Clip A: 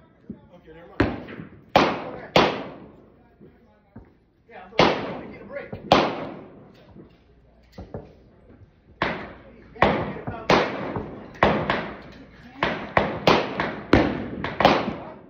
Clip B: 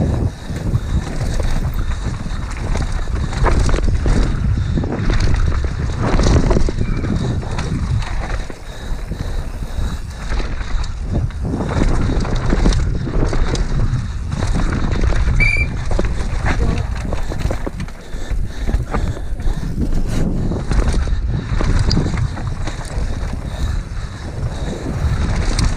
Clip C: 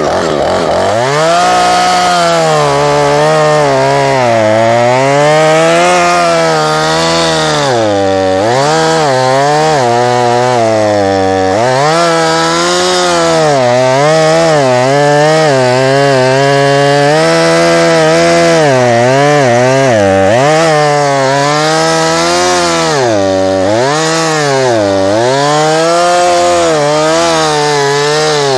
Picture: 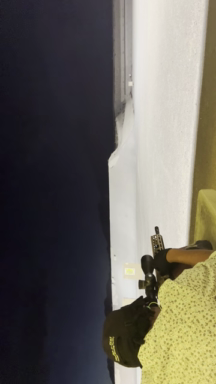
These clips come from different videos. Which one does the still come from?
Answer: A